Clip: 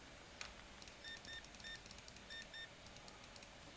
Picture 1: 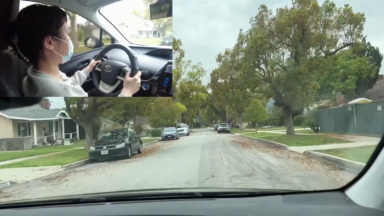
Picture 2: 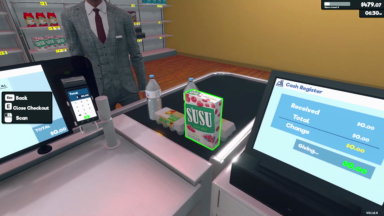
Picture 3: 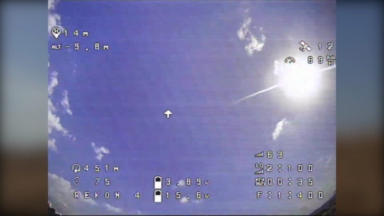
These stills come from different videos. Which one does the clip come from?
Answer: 2